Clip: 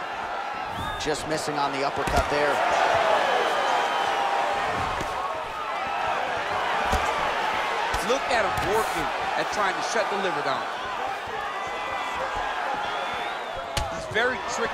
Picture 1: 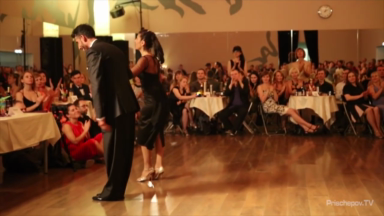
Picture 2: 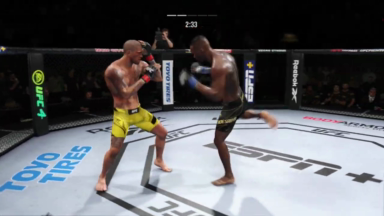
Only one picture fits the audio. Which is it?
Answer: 2